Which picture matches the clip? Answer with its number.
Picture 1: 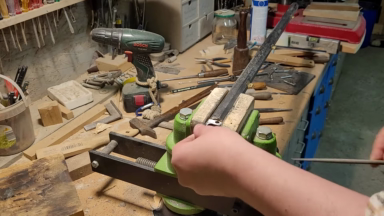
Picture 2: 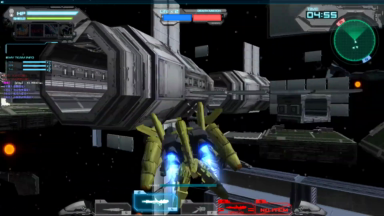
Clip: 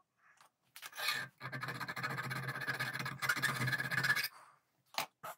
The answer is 1